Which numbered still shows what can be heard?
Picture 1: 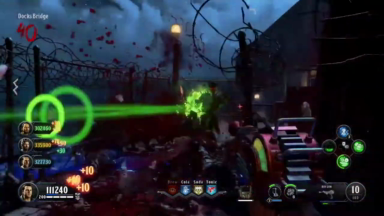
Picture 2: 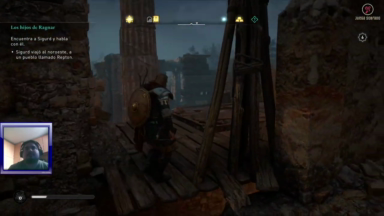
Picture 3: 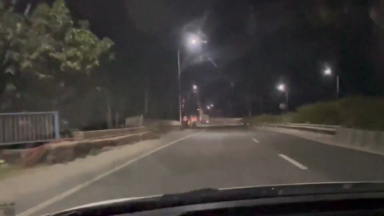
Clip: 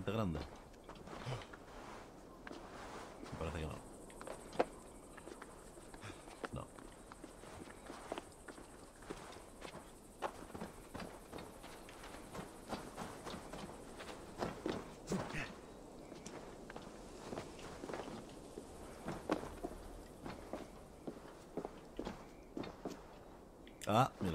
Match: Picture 2